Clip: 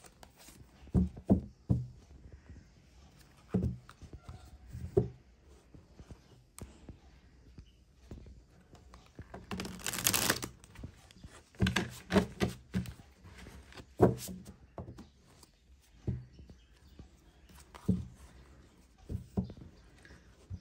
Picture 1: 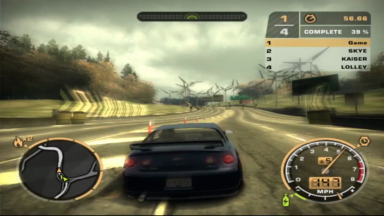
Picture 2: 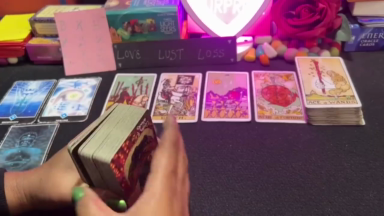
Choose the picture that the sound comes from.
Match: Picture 2